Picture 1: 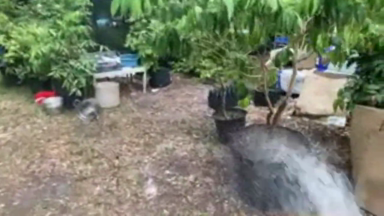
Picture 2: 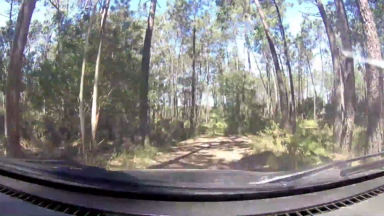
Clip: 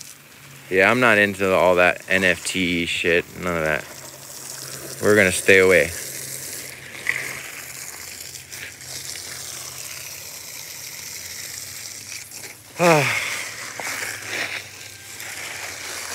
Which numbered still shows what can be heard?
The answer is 1